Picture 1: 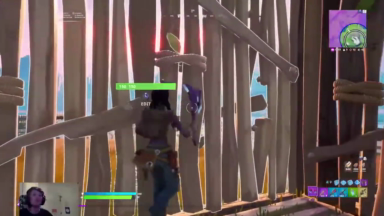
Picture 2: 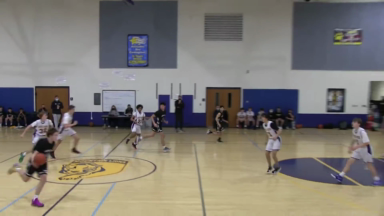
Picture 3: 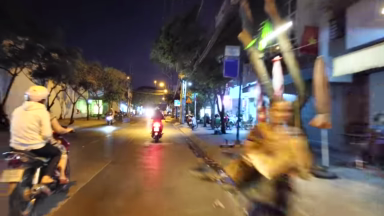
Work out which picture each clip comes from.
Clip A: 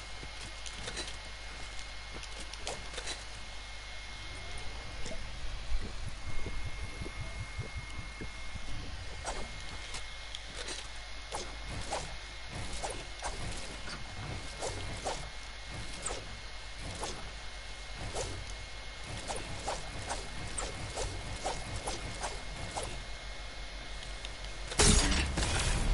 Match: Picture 1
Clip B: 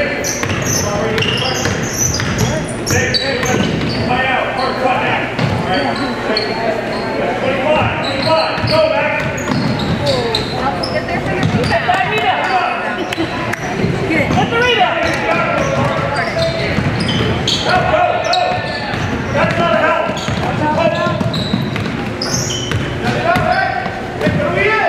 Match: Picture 2